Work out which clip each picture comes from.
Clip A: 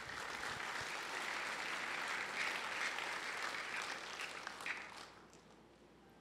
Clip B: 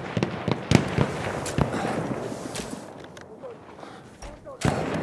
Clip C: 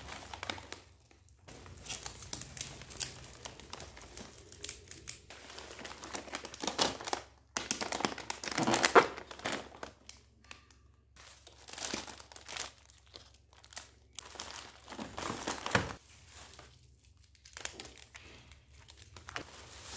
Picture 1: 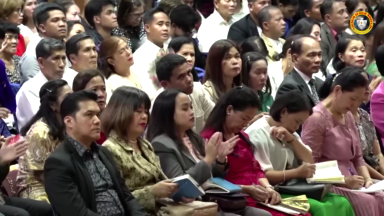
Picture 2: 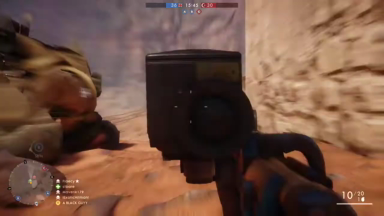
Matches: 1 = A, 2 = B